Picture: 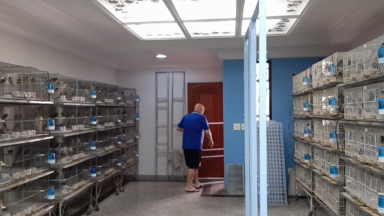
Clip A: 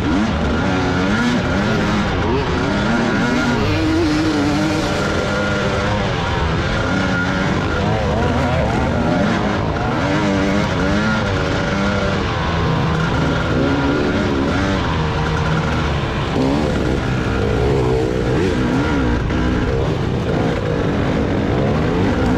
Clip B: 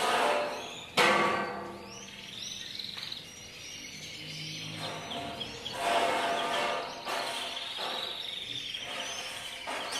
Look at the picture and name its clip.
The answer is B